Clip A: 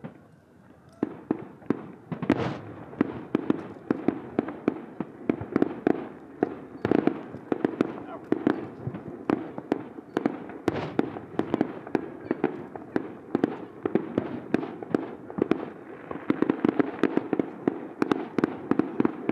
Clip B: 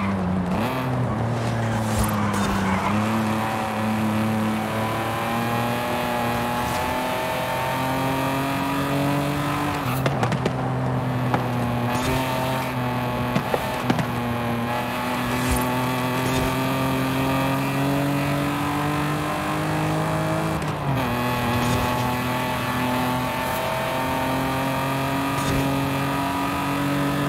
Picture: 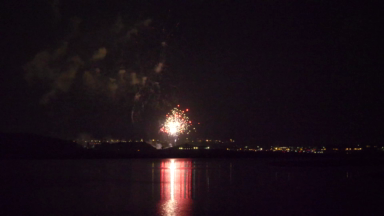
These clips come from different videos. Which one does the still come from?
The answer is A